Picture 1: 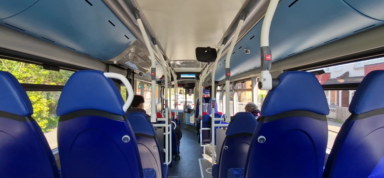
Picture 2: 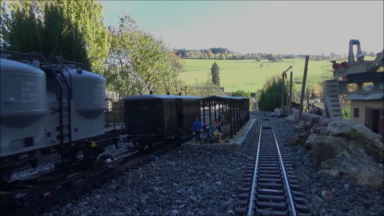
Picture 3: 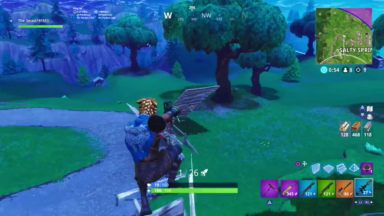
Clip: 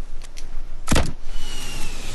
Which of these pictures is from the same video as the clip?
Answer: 3